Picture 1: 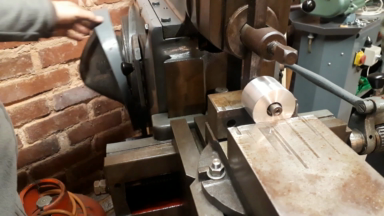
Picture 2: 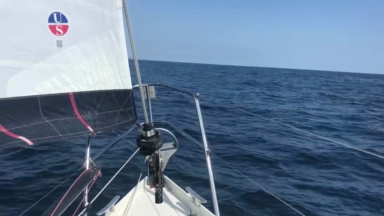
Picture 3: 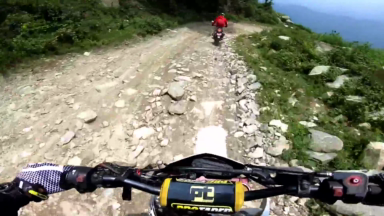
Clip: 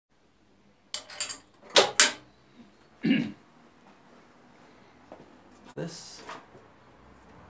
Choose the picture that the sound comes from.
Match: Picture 1